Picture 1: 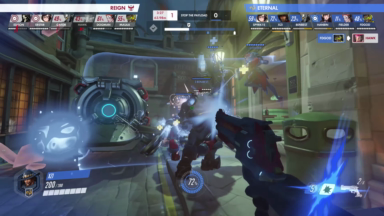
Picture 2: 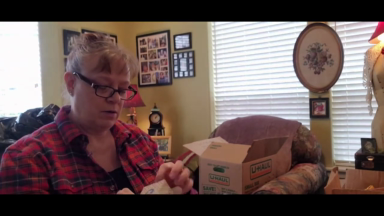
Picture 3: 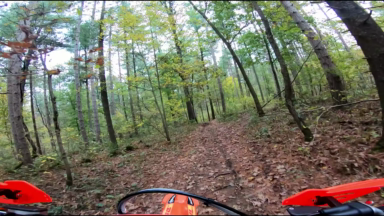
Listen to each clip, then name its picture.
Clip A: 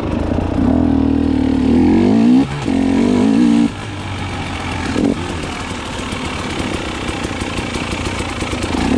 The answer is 3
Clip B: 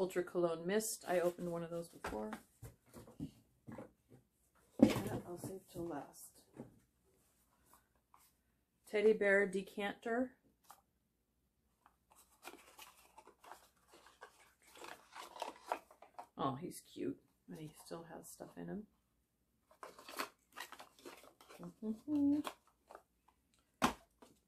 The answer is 2